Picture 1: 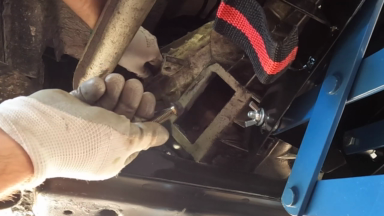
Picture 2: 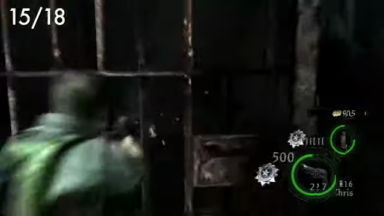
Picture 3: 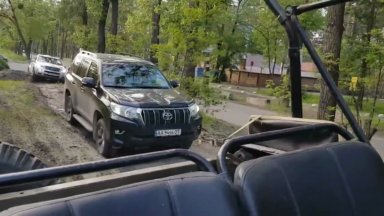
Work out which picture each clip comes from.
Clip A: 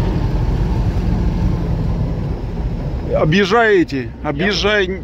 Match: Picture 3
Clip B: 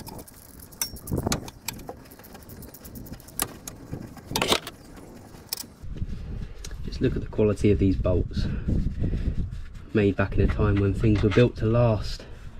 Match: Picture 1